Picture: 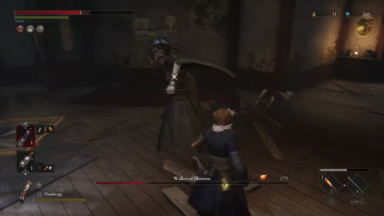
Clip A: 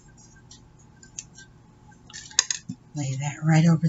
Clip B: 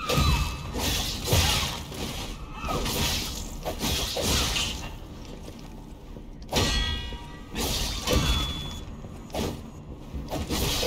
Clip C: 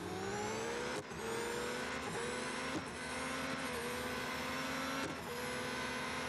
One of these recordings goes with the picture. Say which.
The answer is B